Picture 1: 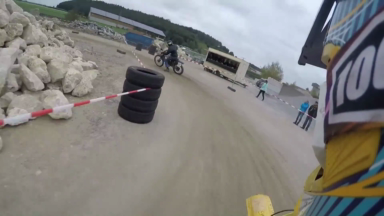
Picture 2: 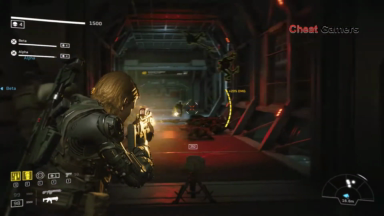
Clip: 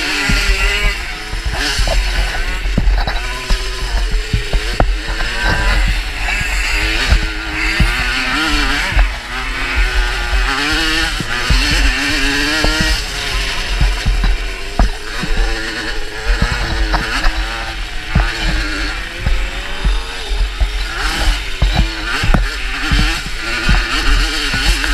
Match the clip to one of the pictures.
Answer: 1